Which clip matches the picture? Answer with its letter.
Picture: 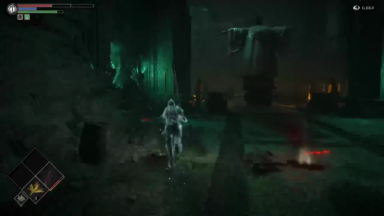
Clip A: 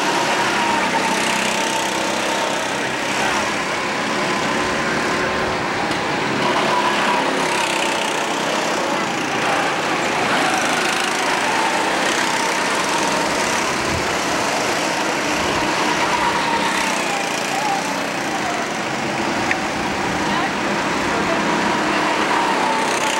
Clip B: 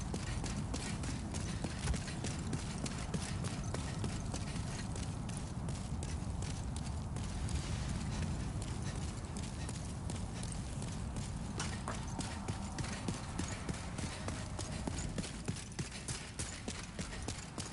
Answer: B